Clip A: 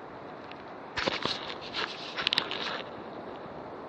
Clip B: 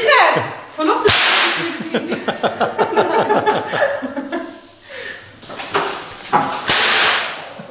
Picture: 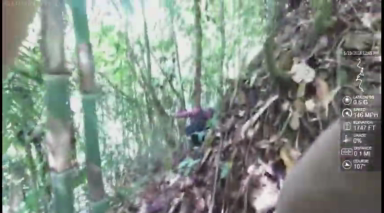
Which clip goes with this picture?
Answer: A